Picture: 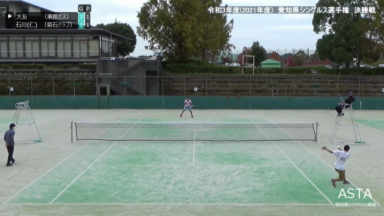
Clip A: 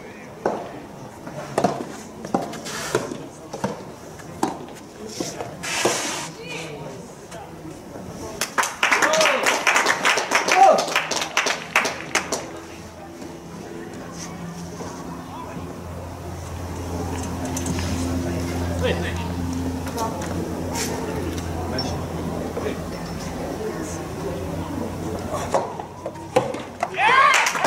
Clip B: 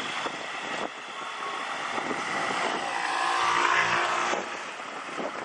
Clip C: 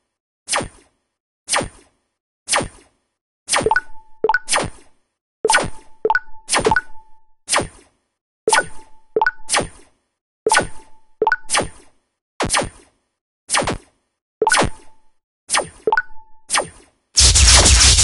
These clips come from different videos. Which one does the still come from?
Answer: A